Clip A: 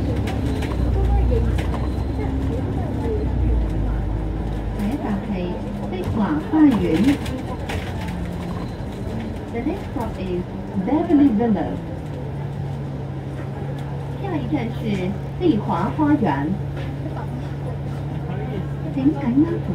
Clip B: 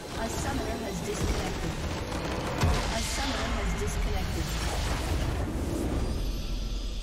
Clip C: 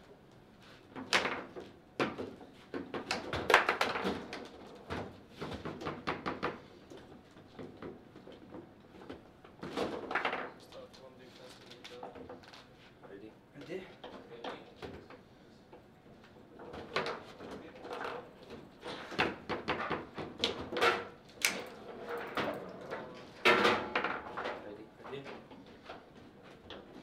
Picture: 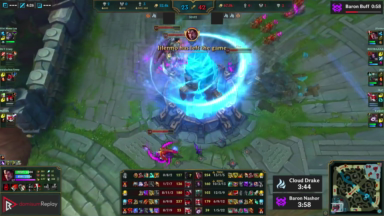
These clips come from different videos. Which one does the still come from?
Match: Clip B